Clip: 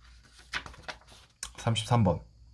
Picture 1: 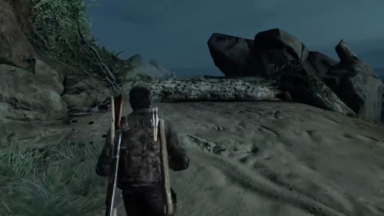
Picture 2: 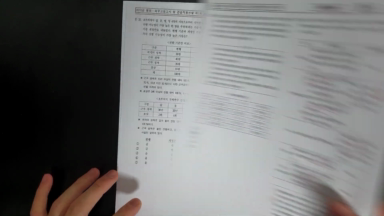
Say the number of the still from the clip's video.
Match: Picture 2